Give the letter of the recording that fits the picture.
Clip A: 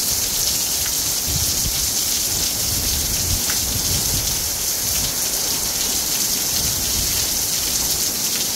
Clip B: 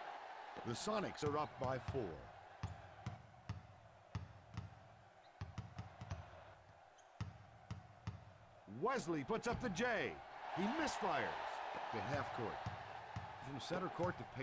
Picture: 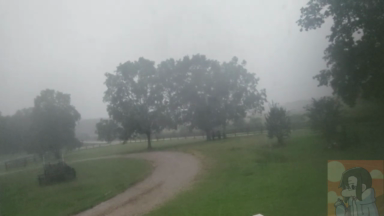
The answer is A